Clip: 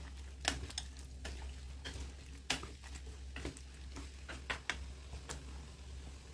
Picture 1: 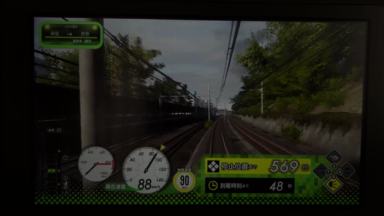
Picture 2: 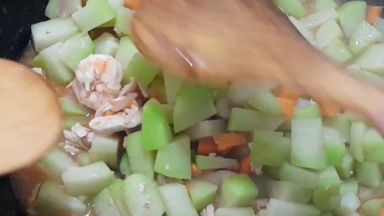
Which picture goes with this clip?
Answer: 2